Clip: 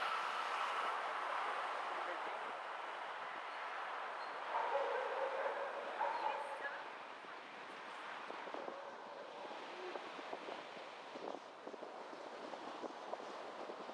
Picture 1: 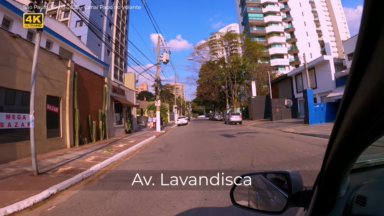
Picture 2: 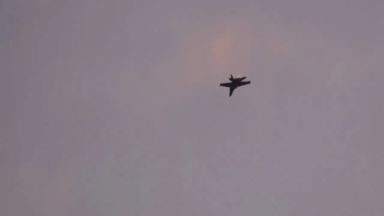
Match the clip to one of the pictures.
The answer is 1